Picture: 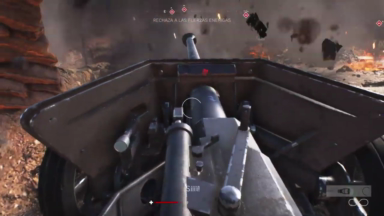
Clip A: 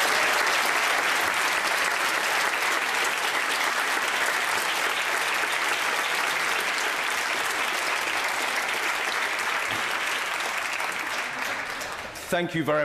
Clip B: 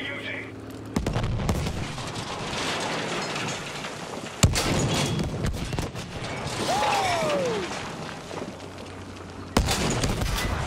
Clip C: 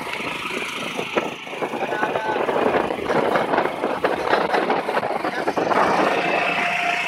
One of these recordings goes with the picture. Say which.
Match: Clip B